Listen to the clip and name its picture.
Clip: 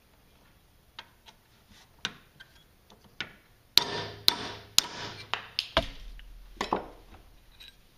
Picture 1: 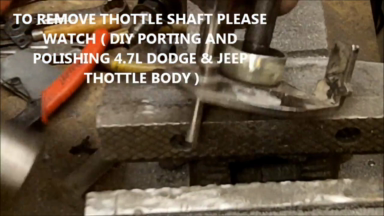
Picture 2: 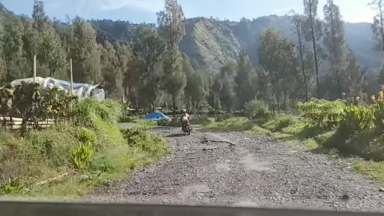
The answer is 1